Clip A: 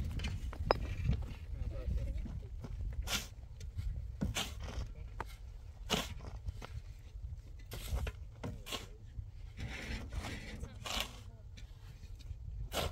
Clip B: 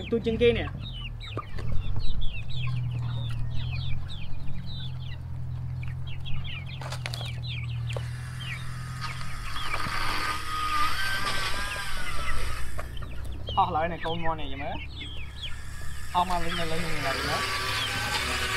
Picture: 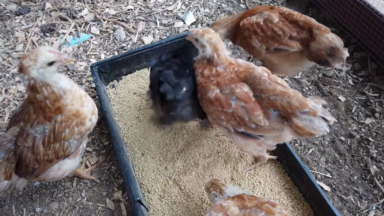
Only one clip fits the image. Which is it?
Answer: B